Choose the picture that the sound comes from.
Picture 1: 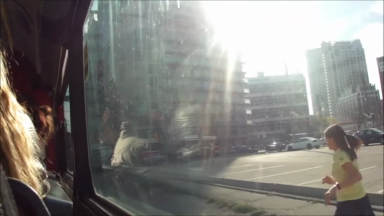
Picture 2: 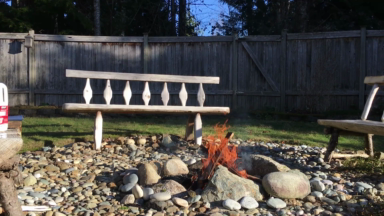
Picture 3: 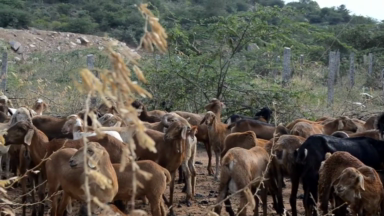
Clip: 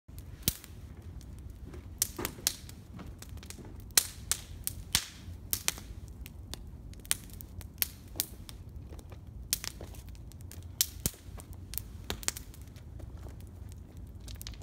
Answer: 2